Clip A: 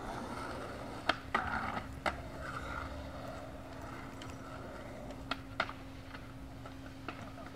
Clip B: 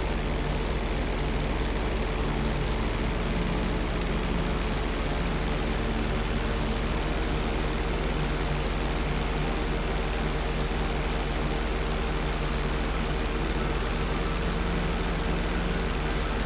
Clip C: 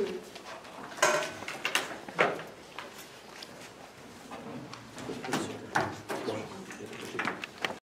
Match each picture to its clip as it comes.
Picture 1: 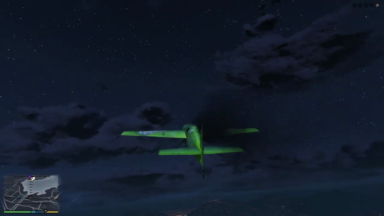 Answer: B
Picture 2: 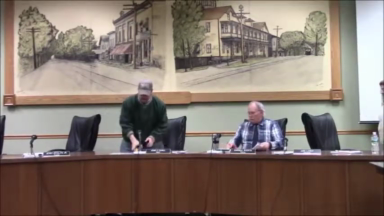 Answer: C